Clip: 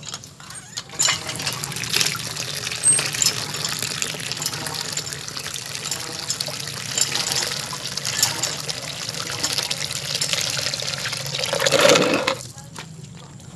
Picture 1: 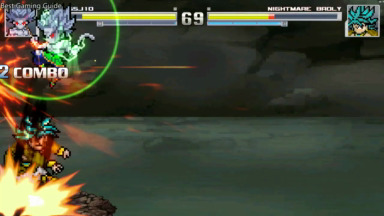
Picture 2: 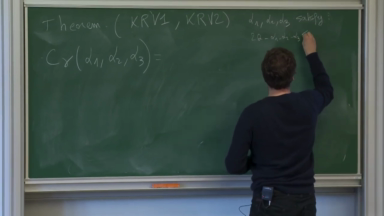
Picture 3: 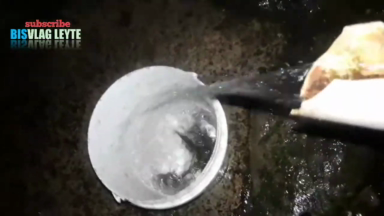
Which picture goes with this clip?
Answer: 3